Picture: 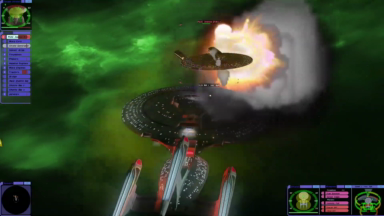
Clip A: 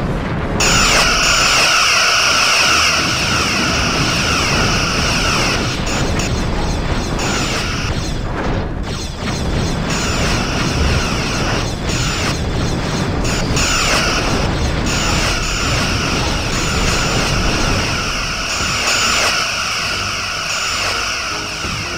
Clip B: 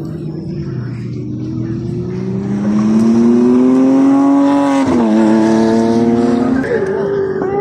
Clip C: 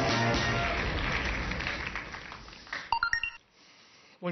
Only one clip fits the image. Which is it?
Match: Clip A